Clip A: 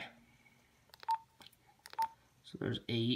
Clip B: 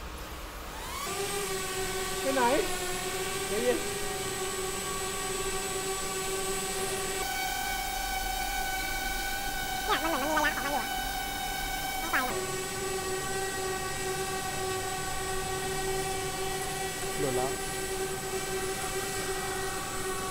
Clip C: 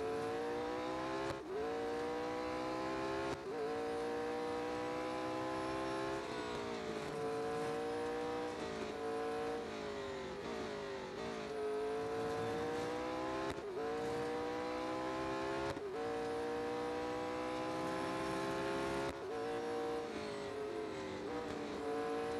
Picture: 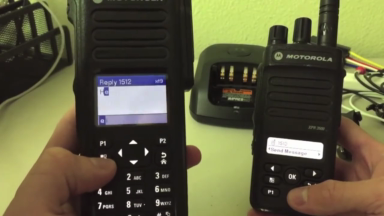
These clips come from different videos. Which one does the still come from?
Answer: A